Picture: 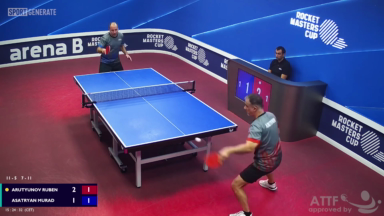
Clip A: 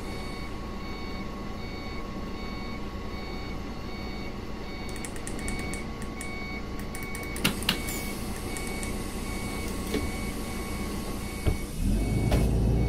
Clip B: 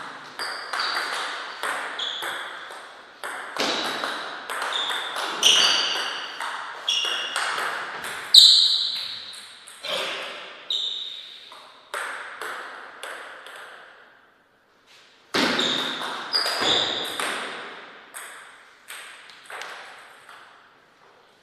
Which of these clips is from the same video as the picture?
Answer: B